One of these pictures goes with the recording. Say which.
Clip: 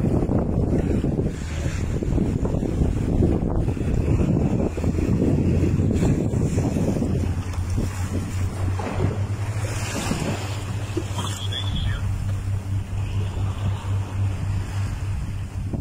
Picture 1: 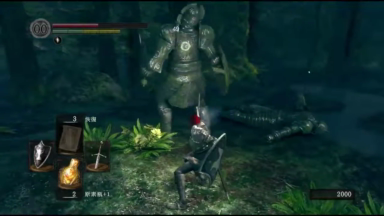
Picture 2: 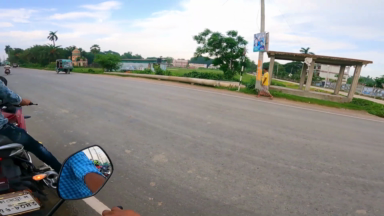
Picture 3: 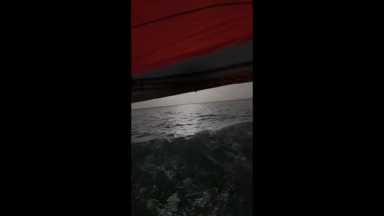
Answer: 3